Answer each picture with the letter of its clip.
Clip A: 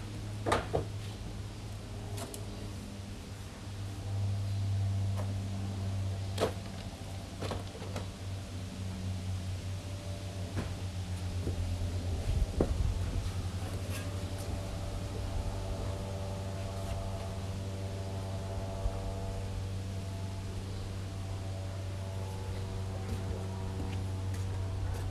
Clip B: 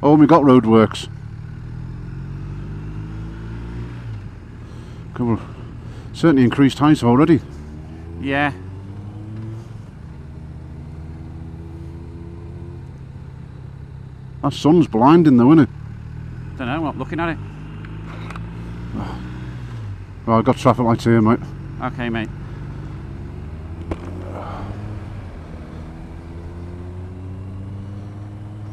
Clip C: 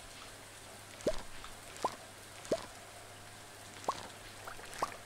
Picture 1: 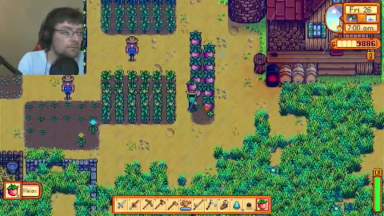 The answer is C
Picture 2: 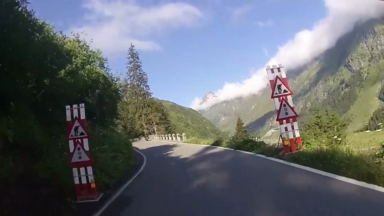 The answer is B